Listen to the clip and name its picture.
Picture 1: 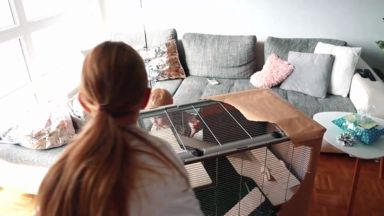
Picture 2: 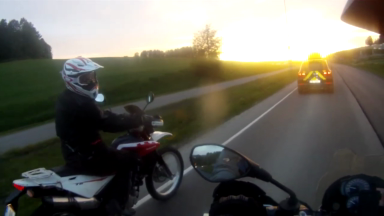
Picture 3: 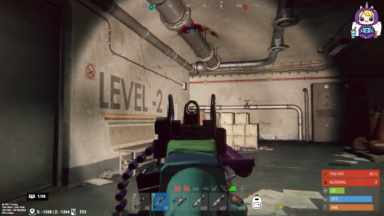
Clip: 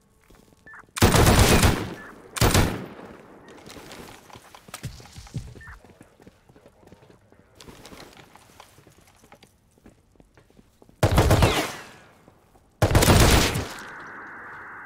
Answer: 3